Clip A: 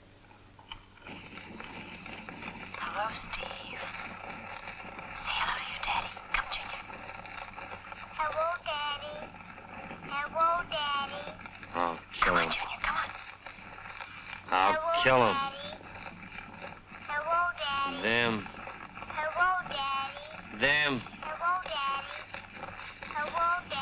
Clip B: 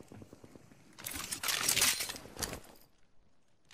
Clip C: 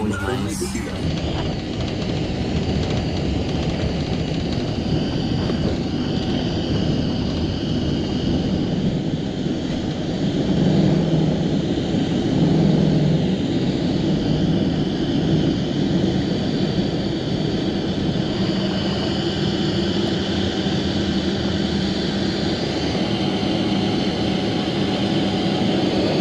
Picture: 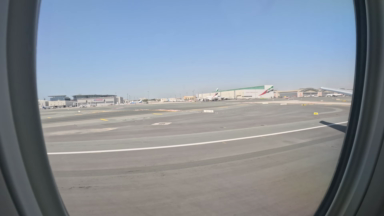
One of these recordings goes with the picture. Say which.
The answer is C